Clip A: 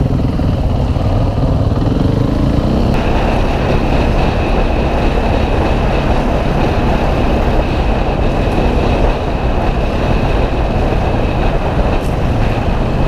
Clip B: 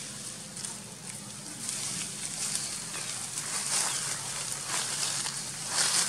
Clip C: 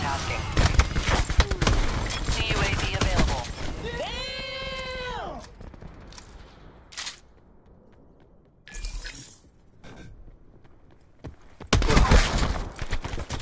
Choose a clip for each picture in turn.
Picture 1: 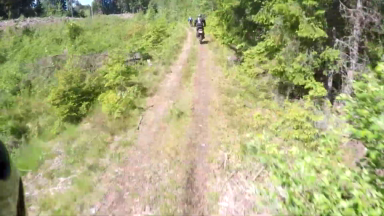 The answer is A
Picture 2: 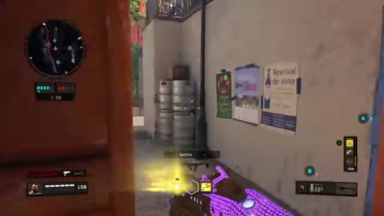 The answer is C